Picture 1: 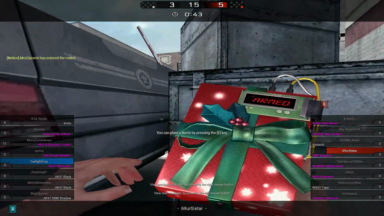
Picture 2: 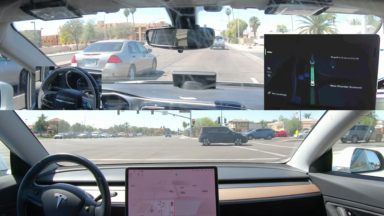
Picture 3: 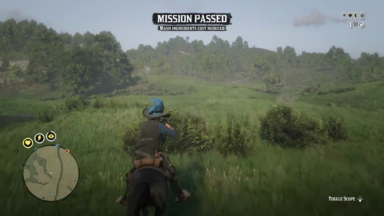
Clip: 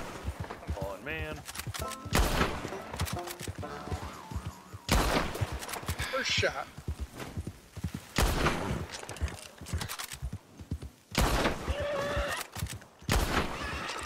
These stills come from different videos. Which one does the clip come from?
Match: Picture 3